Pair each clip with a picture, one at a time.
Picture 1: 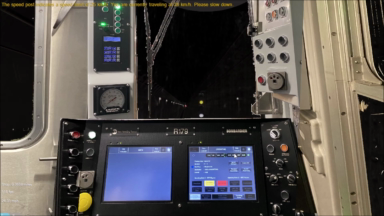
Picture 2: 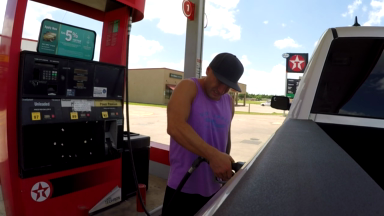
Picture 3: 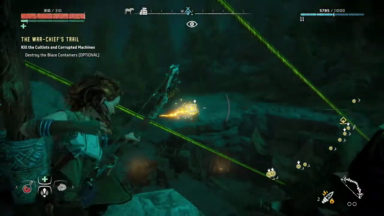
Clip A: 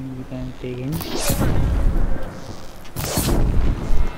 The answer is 3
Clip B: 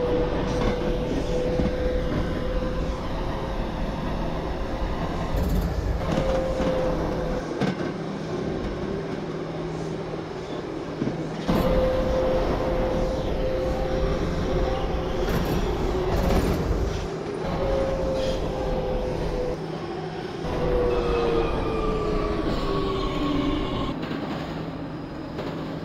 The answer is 1